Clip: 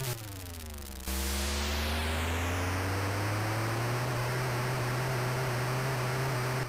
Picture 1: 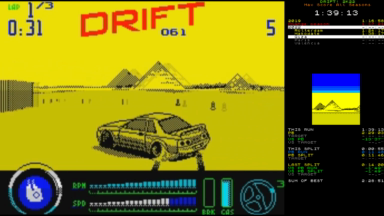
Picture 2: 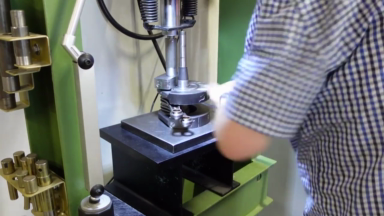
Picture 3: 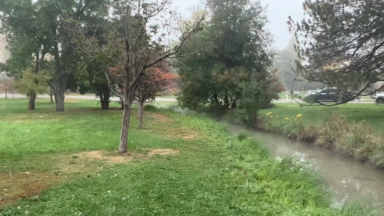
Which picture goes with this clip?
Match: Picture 1